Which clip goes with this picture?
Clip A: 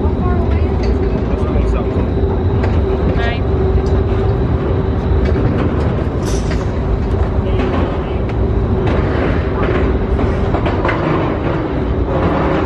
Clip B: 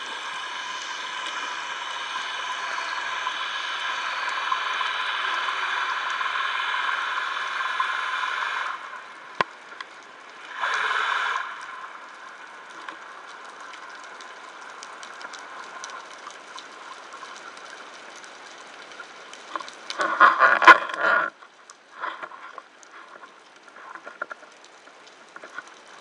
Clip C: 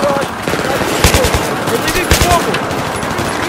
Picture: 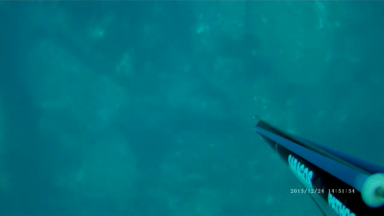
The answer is B